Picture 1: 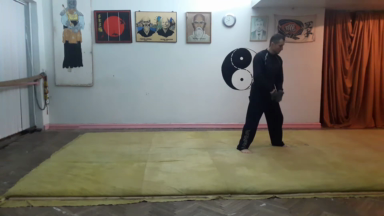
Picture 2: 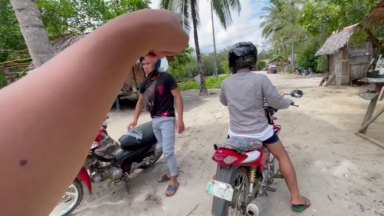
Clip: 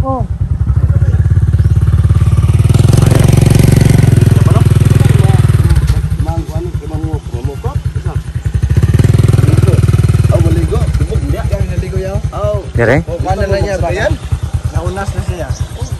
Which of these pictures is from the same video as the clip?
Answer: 2